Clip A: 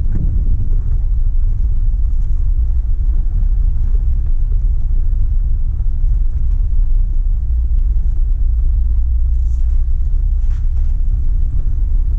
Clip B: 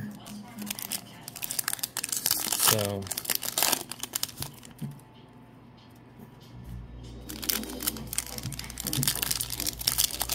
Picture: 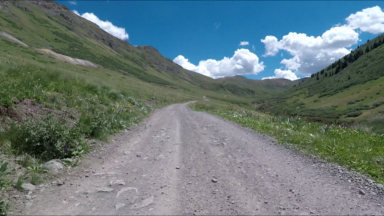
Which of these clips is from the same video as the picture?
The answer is A